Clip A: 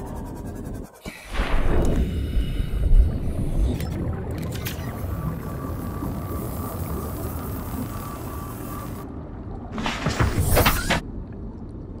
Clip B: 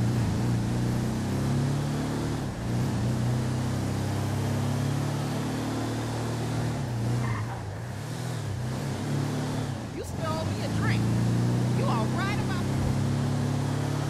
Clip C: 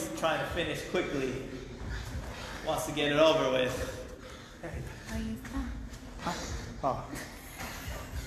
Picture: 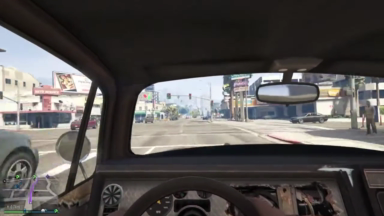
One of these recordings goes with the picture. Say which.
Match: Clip B